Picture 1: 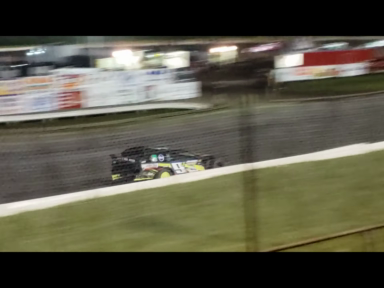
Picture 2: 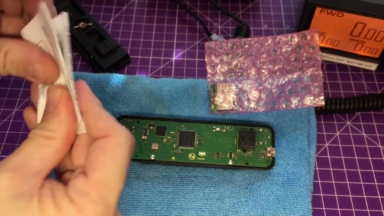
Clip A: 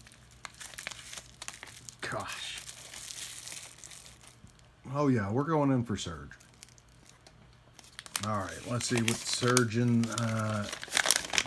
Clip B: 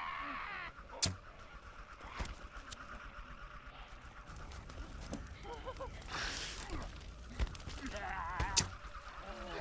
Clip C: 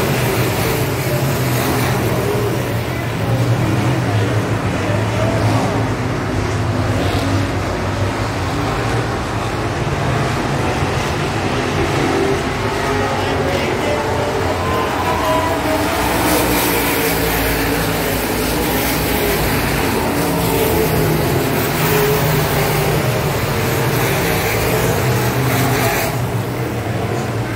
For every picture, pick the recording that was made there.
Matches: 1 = C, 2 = A